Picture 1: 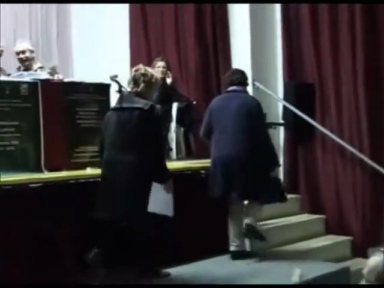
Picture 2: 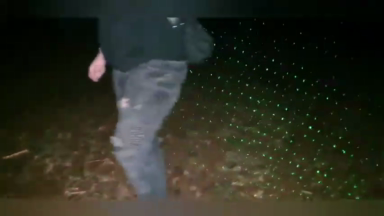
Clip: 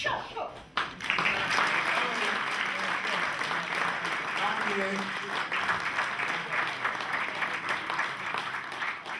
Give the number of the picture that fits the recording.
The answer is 1